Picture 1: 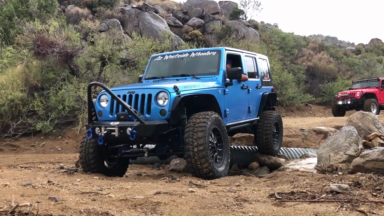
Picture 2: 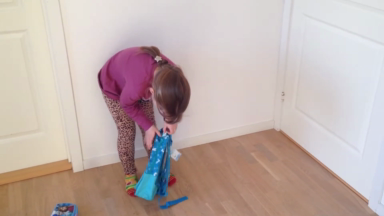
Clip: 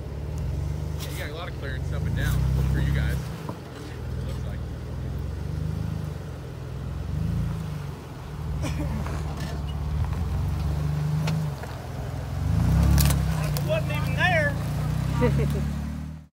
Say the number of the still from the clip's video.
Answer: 1